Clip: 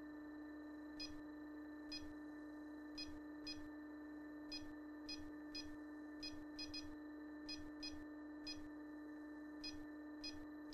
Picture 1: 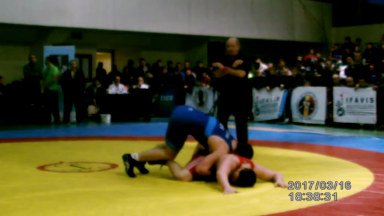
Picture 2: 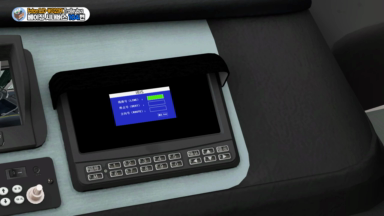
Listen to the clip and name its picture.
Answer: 2